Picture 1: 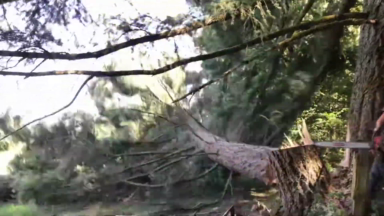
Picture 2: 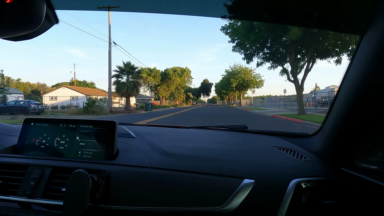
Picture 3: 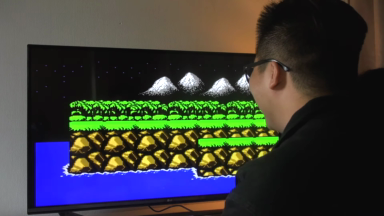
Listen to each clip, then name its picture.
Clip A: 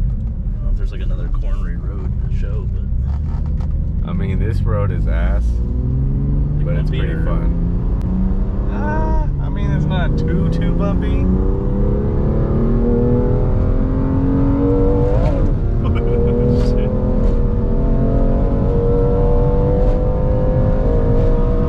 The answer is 2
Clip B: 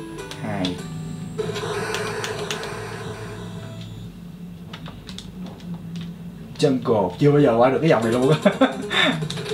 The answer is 3